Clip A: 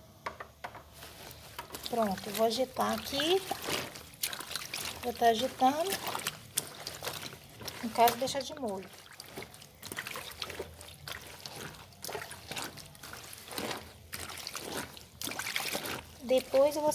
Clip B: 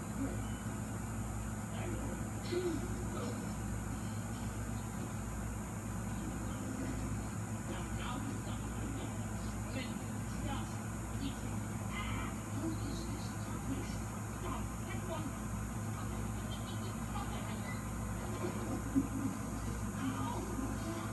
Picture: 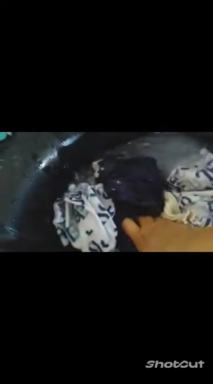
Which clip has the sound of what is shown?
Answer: A